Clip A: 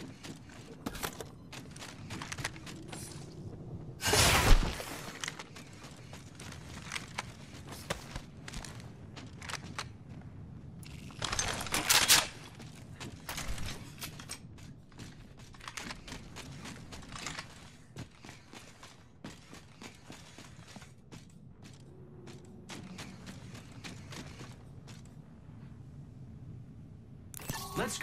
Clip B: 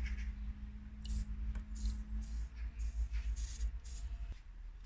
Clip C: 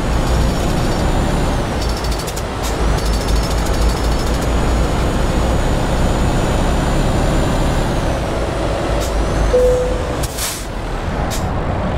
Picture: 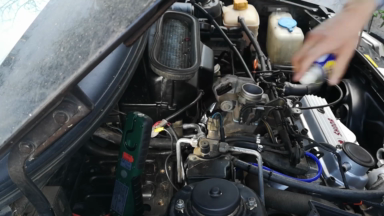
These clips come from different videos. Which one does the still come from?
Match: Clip B